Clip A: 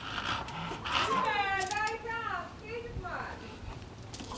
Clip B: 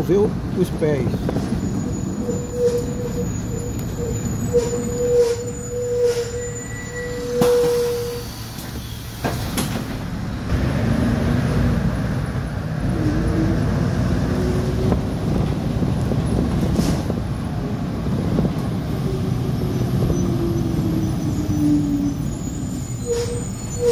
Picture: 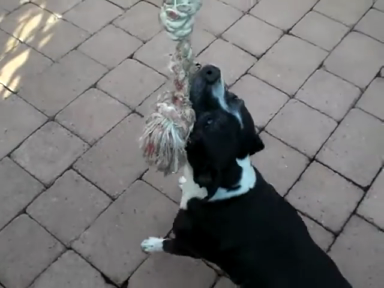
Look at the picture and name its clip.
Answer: A